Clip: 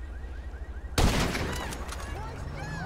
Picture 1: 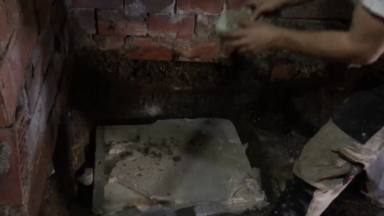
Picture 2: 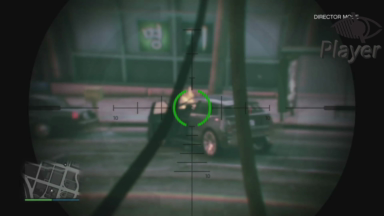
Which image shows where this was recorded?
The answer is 2